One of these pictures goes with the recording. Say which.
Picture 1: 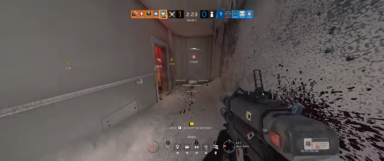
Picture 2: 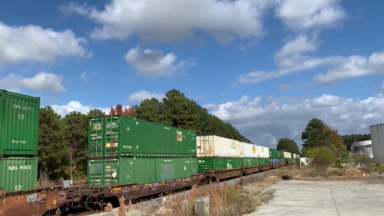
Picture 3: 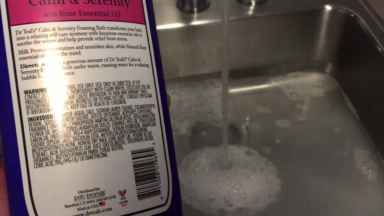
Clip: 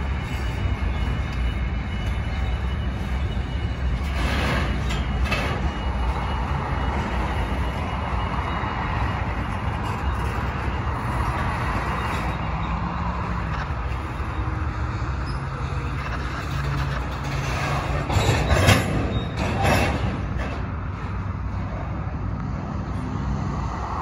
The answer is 2